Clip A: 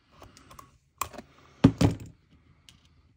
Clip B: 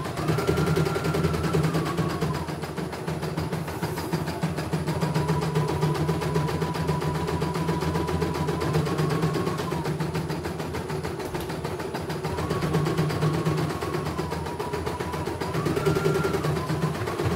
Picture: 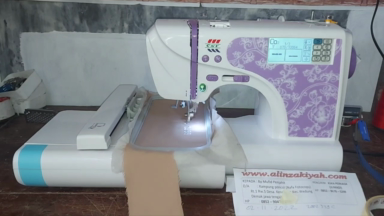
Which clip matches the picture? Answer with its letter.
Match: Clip B